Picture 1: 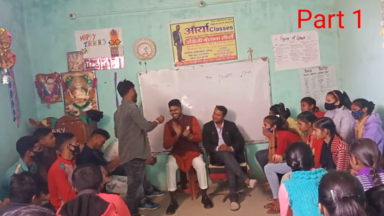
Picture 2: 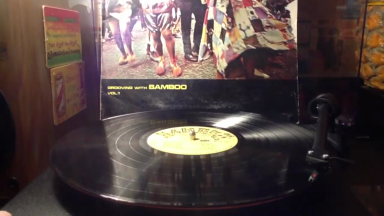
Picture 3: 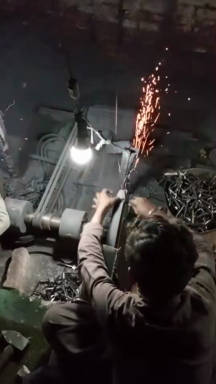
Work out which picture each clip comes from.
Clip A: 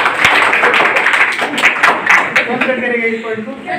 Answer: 1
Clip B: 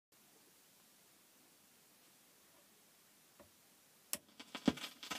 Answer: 2